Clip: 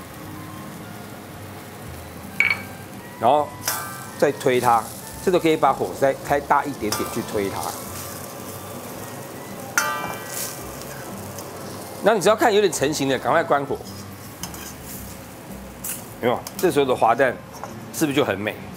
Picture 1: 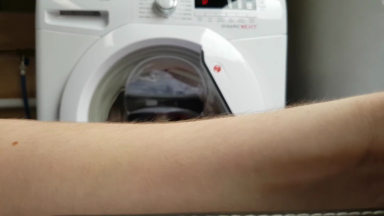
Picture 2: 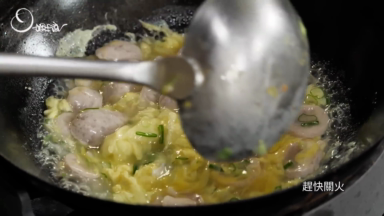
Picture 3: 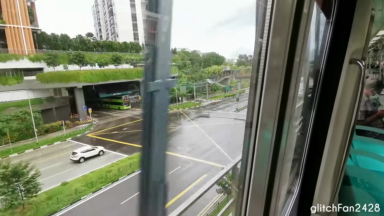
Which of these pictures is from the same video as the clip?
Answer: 2